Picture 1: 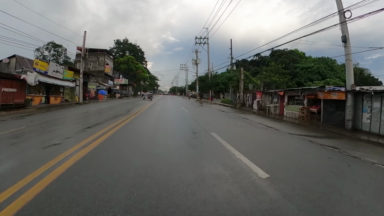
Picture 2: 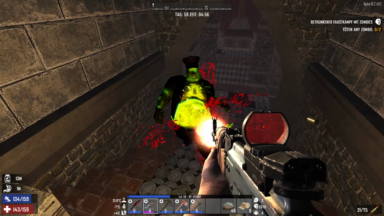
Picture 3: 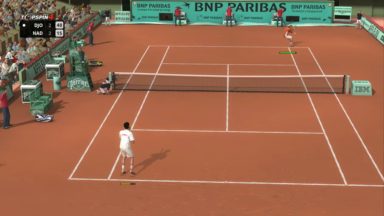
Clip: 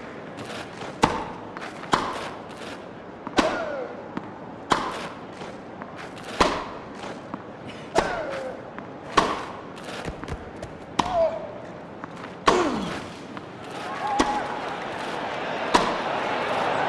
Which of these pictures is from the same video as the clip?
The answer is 3